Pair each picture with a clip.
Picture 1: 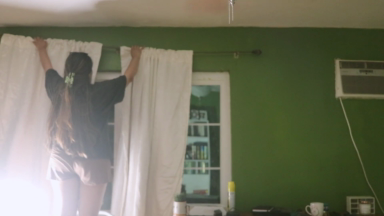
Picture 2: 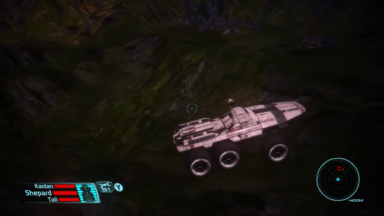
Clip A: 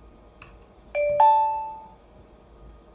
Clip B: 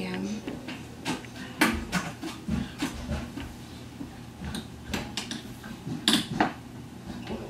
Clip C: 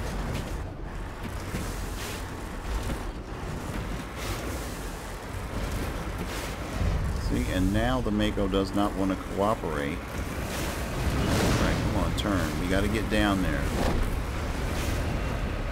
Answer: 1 B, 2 C